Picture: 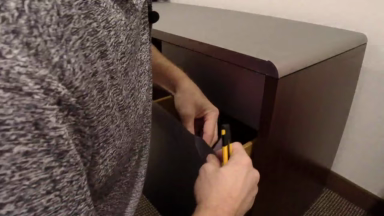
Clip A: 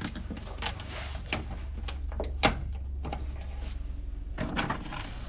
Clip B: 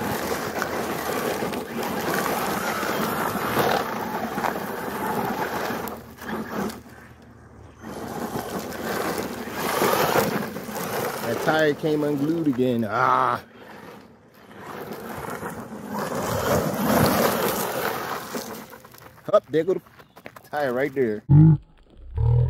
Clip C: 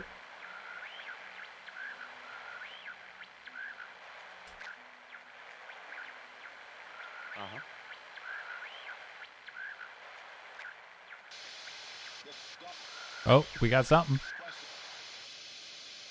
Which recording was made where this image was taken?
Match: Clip A